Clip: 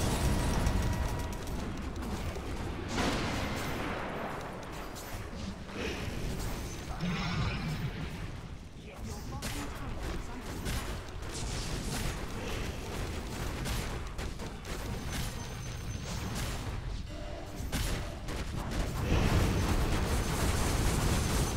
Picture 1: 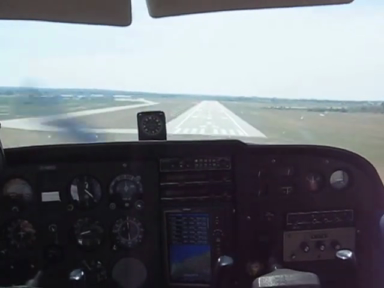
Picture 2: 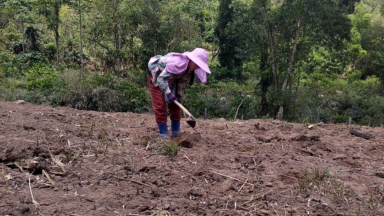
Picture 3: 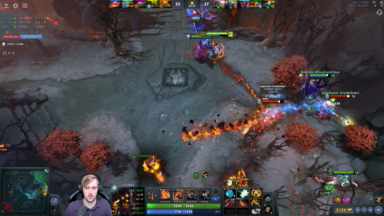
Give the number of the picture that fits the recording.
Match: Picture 3